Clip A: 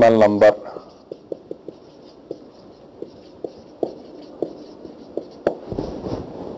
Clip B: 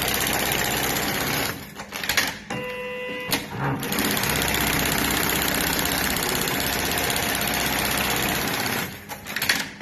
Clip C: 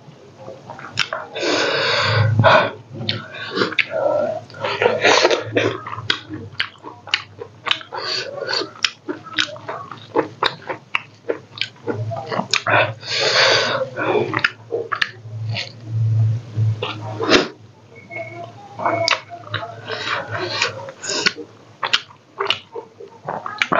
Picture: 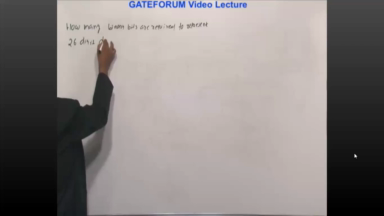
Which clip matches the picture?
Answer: A